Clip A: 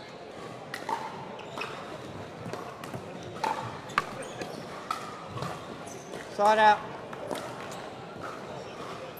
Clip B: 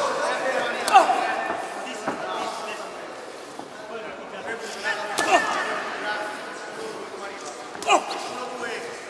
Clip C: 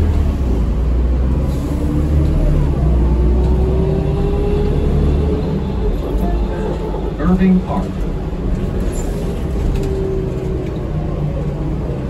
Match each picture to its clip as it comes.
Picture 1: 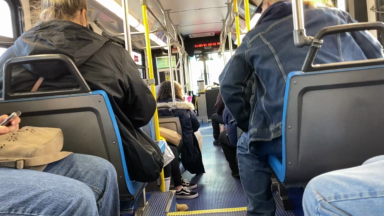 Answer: C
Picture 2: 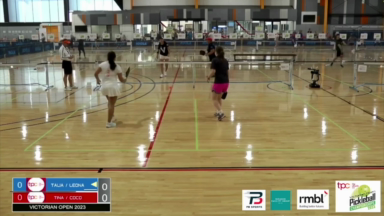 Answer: A